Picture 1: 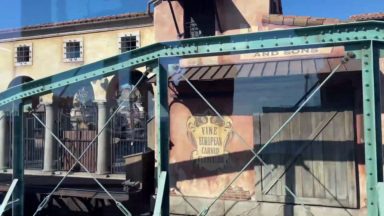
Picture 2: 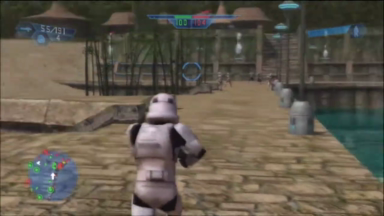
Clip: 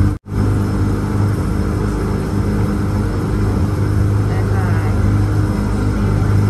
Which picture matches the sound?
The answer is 1